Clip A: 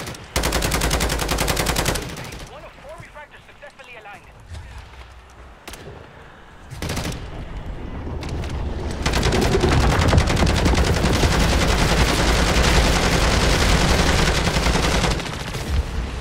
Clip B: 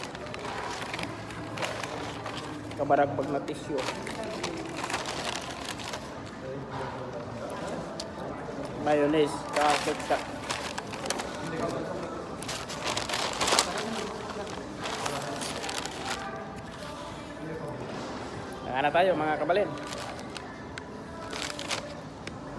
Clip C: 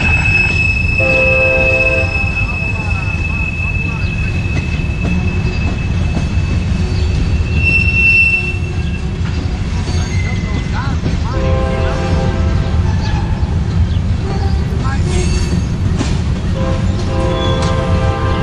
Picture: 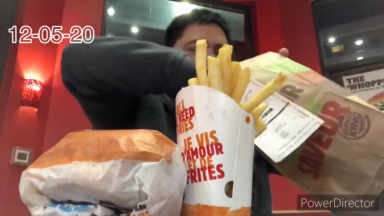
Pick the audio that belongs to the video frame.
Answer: B